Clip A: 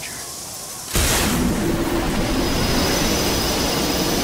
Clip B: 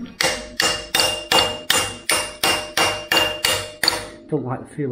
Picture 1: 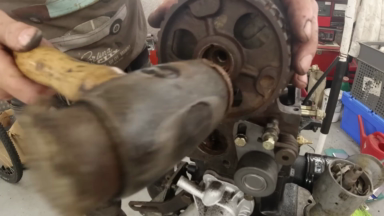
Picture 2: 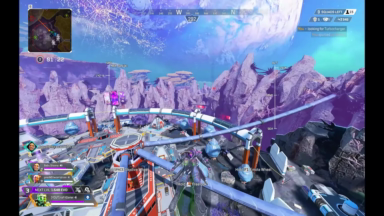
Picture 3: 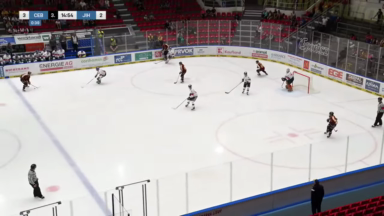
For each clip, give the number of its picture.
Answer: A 2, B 1